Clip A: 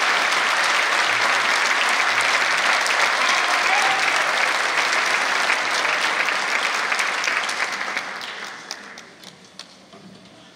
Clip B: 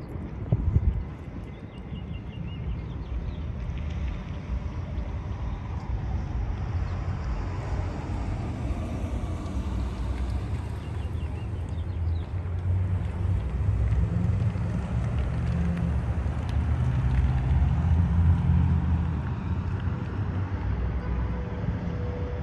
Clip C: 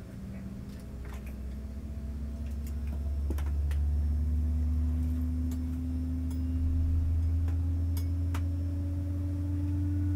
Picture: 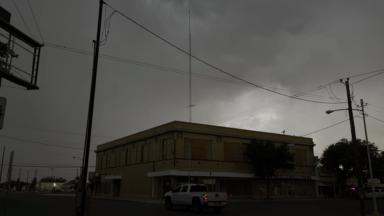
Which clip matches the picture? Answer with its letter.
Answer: B